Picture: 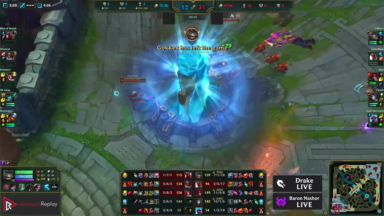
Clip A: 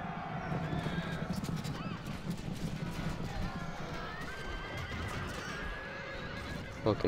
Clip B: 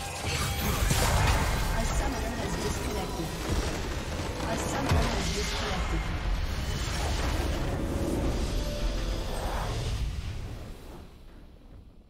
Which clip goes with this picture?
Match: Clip B